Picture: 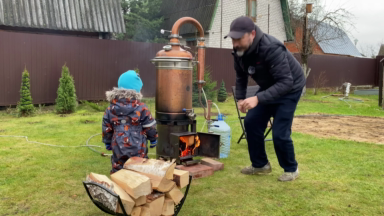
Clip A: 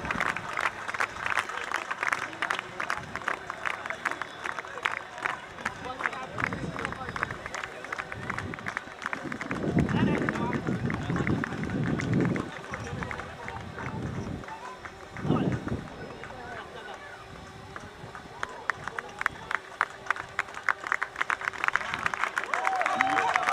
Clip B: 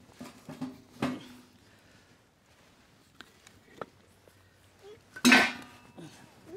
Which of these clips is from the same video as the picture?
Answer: B